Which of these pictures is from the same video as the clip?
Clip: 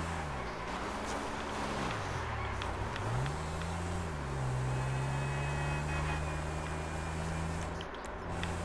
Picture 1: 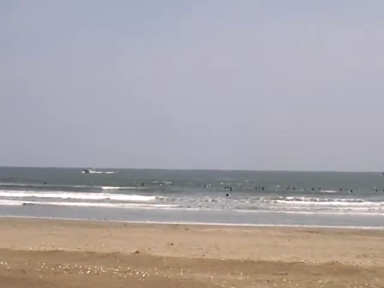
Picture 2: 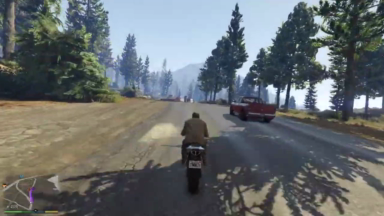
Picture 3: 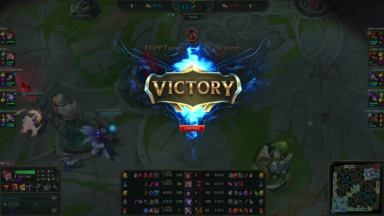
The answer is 2